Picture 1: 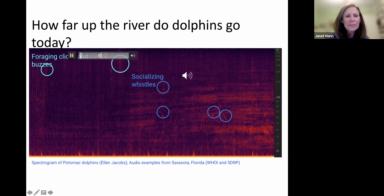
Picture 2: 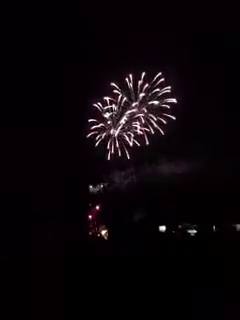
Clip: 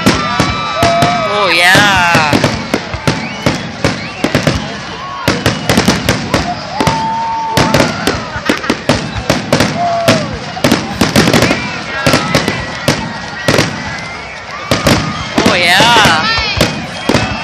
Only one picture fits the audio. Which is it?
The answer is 2